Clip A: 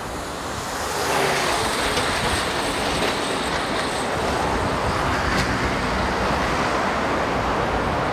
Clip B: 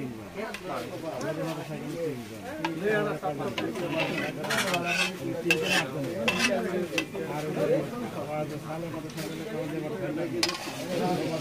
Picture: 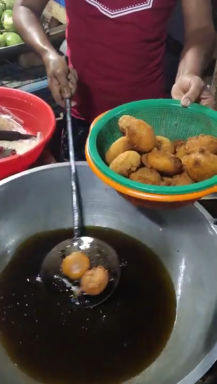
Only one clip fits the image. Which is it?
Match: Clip B